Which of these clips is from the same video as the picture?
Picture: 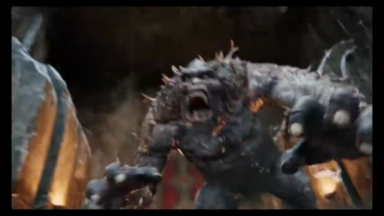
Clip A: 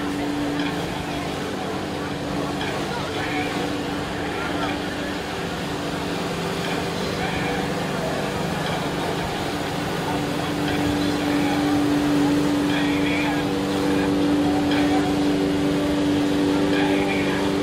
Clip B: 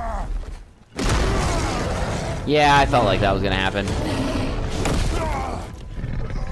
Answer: B